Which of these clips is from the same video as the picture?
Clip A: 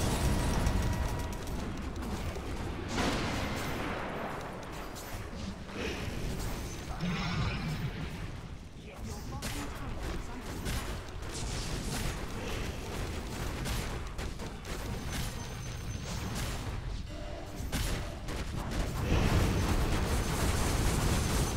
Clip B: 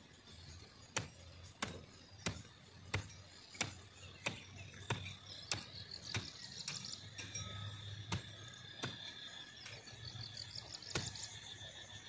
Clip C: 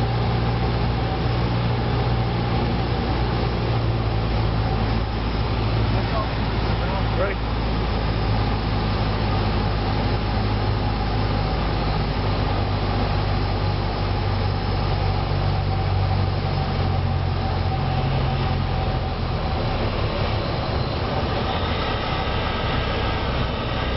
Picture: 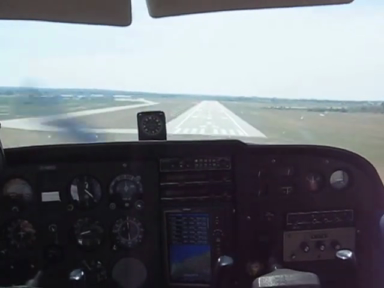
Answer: C